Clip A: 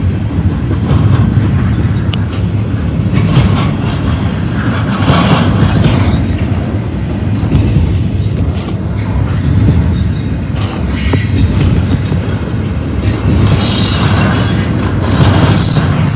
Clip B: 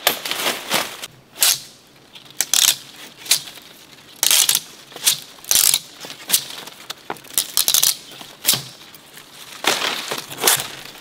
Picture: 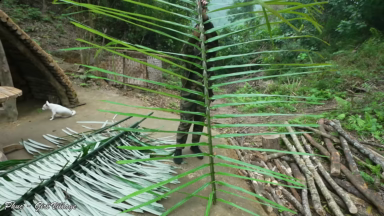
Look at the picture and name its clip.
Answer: B